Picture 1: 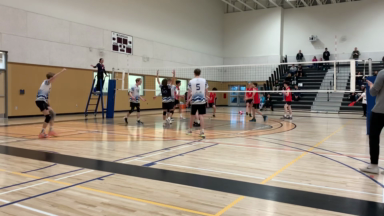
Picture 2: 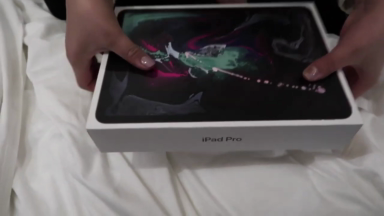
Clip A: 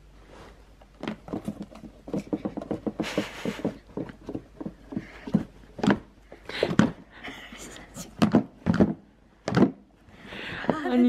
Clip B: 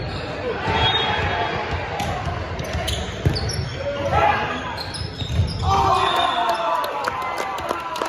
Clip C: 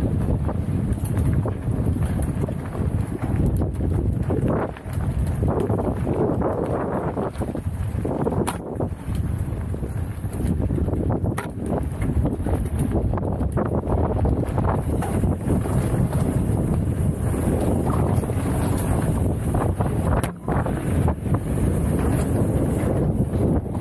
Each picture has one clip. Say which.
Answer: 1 B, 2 A